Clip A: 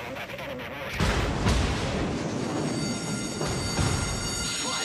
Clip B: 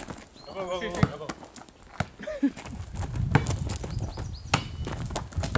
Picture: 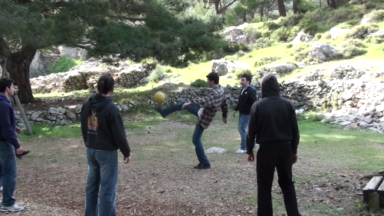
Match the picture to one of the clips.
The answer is B